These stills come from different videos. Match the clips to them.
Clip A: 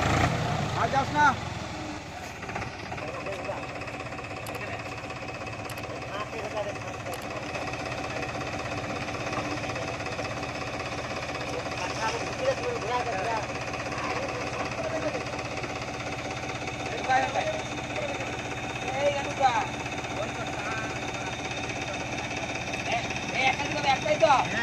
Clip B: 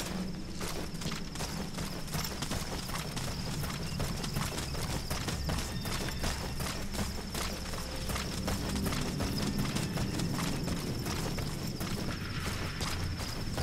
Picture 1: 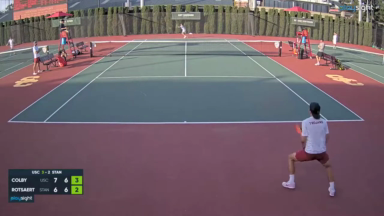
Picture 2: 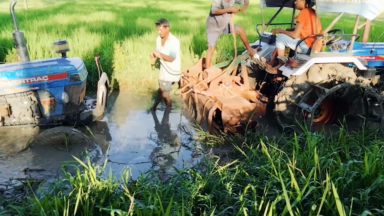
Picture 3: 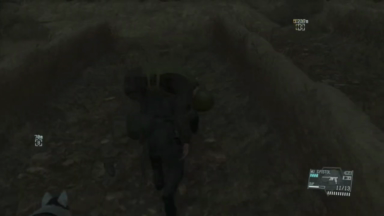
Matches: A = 2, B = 3